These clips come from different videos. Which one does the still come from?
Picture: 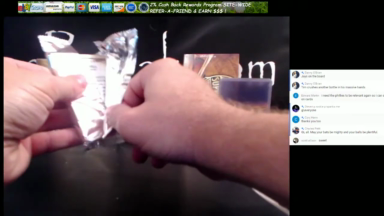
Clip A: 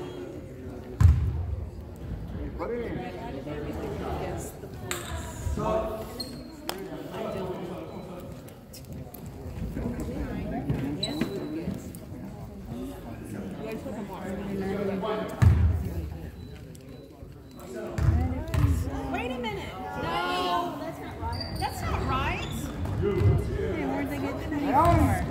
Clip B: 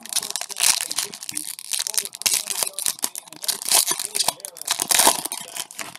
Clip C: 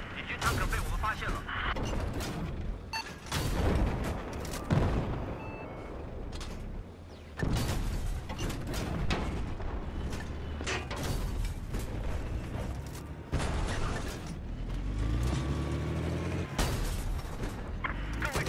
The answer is B